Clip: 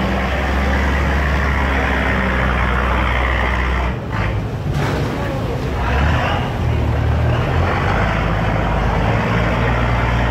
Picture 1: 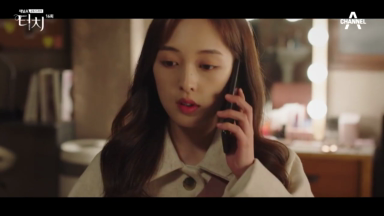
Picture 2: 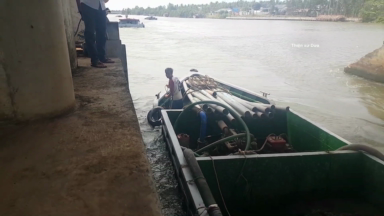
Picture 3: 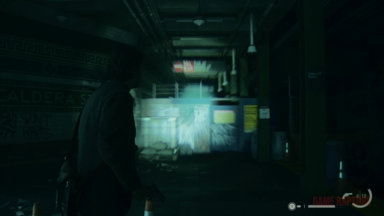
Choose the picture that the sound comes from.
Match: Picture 2